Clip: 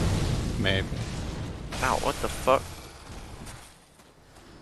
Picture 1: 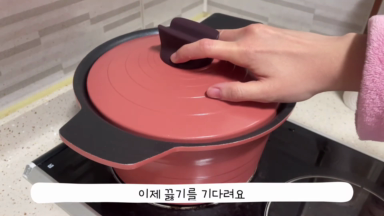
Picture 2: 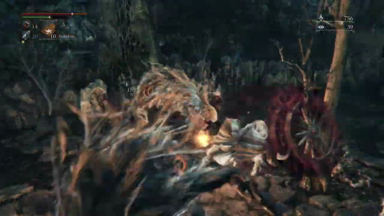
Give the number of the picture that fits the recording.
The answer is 2